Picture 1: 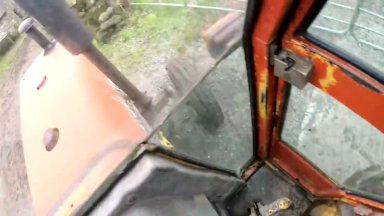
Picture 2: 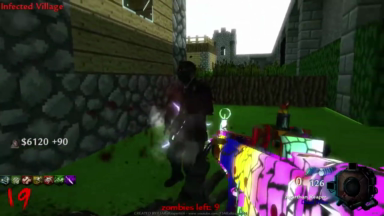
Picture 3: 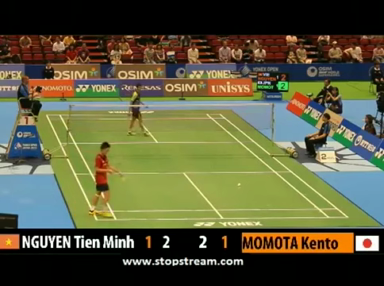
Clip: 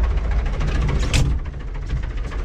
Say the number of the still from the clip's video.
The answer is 1